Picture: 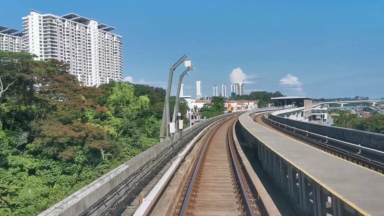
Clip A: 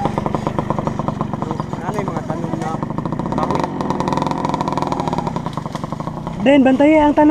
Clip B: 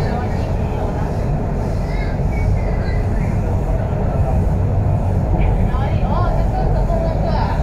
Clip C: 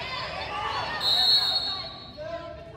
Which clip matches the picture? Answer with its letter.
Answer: B